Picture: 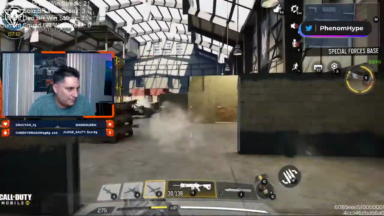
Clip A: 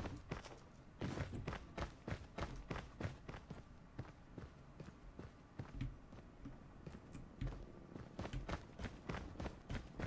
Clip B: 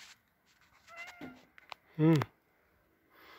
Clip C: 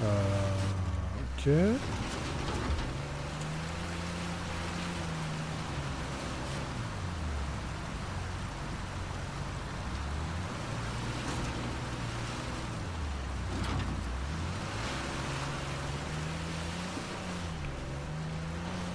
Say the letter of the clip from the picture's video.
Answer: A